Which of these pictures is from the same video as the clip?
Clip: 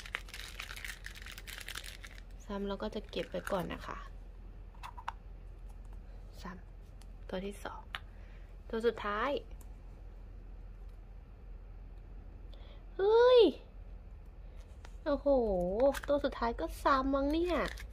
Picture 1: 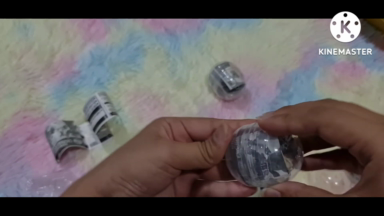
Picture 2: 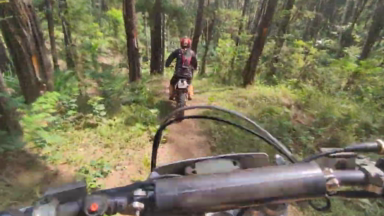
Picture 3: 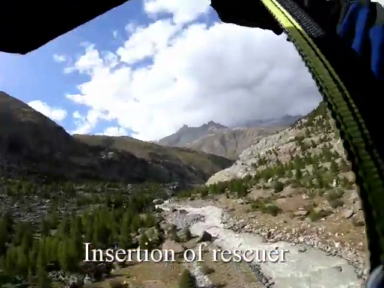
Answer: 1